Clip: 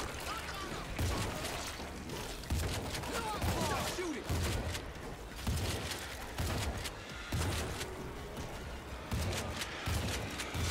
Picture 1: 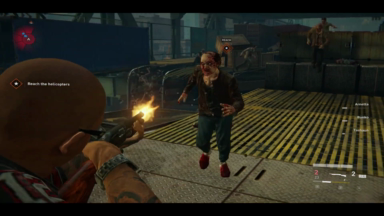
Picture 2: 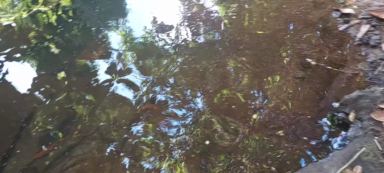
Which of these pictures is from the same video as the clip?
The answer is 1